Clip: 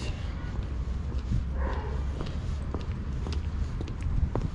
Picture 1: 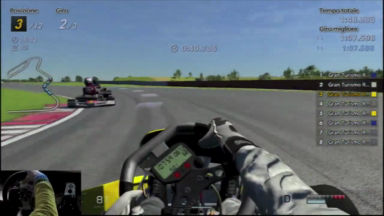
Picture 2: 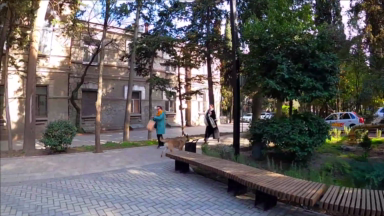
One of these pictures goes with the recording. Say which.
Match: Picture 2